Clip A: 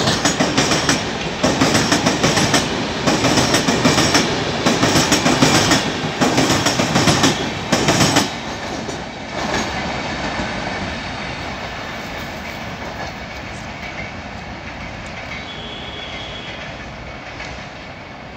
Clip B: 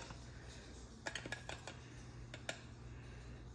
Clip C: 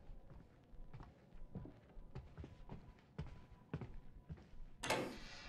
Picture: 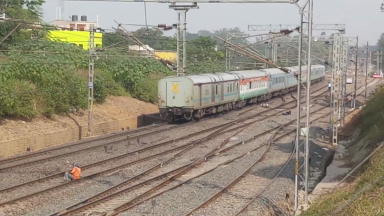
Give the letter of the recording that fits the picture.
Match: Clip A